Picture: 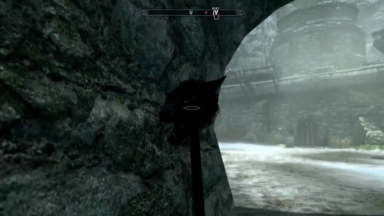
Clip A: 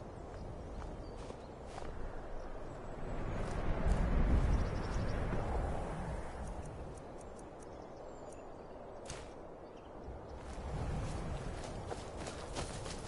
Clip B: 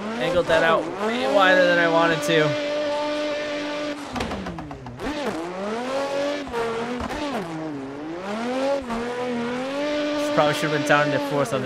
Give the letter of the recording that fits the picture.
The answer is A